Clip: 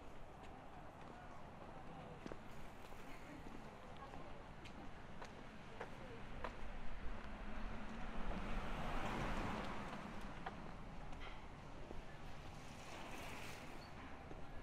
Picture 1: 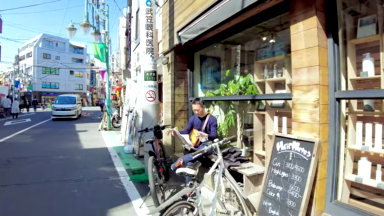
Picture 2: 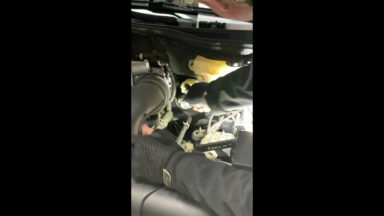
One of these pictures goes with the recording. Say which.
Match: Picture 1